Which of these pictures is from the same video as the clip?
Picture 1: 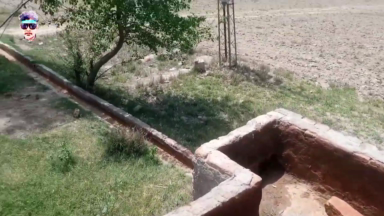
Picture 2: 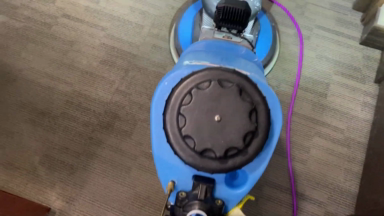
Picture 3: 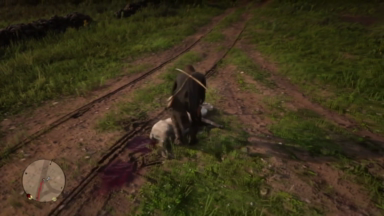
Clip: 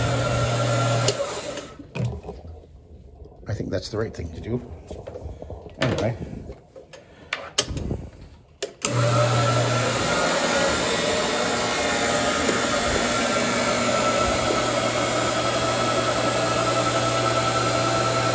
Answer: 2